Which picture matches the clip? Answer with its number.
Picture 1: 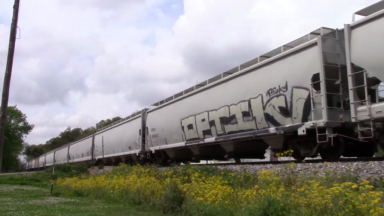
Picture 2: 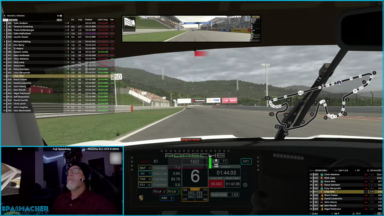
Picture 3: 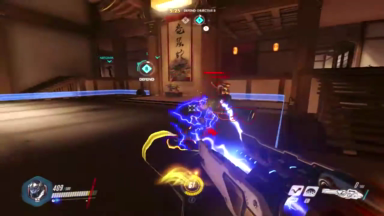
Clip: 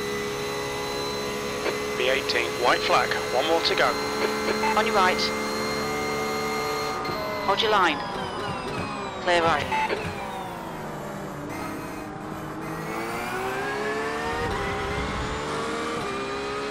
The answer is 2